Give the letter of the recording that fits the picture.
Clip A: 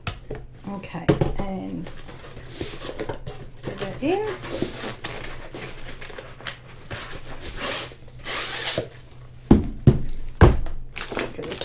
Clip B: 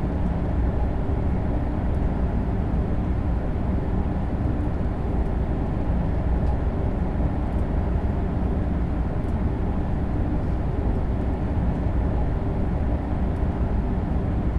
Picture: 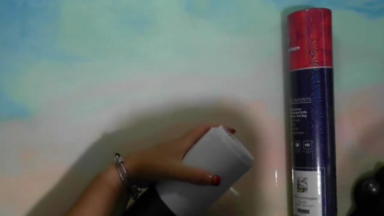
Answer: A